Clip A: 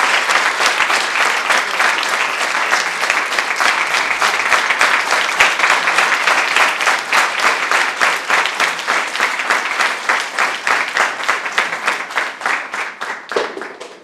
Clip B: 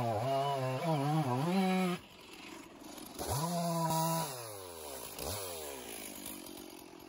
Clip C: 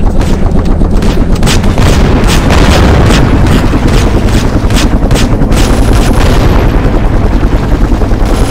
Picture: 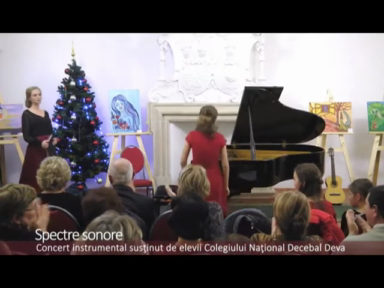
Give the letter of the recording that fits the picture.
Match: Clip A